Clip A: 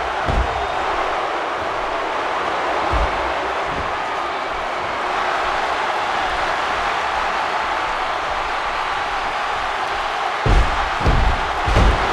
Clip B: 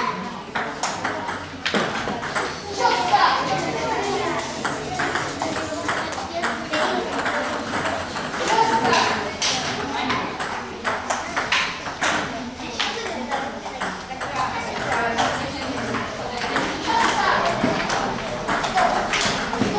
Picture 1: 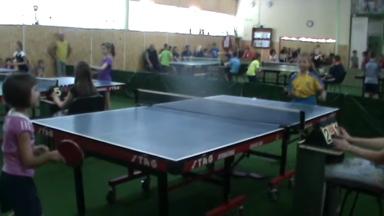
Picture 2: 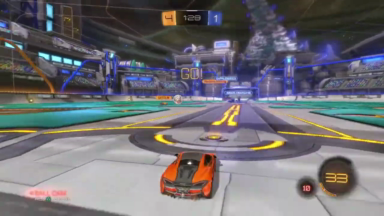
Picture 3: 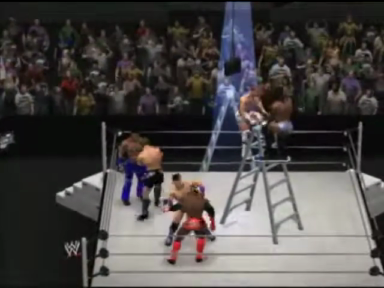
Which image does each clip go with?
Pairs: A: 3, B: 1